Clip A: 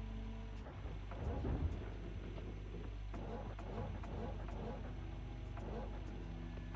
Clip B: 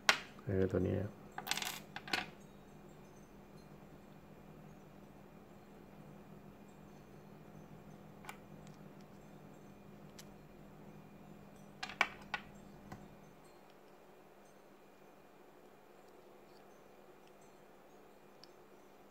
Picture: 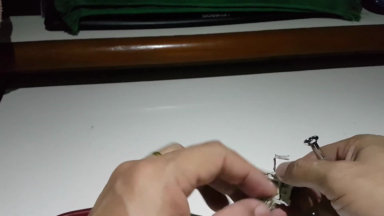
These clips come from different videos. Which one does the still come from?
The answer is B